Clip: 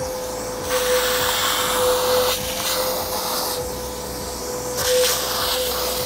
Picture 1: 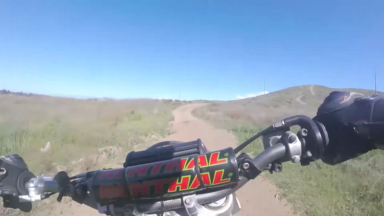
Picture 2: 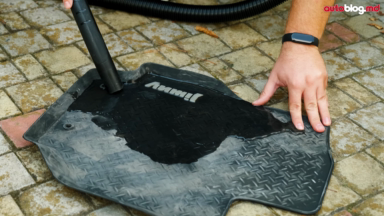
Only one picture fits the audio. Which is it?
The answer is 2